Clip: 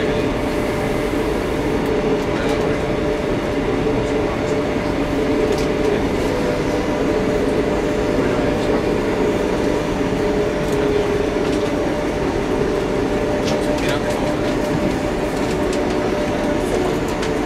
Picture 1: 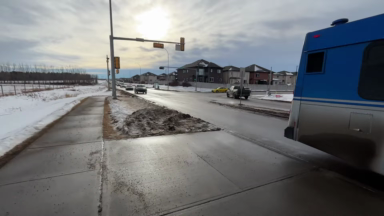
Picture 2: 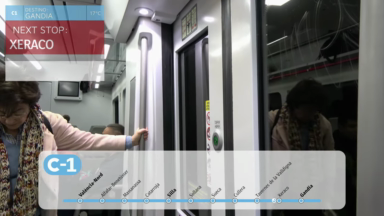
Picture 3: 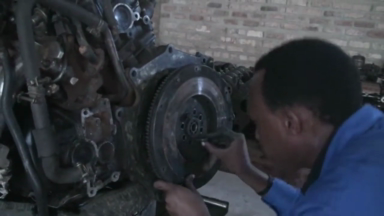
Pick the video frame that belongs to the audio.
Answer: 2